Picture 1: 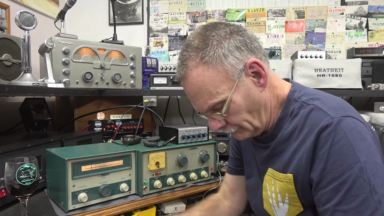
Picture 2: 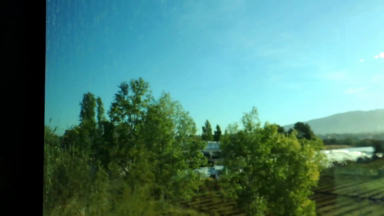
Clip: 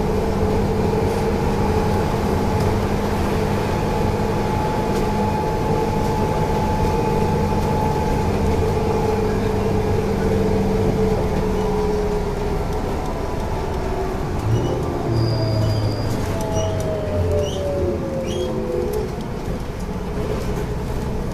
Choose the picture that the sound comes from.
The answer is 2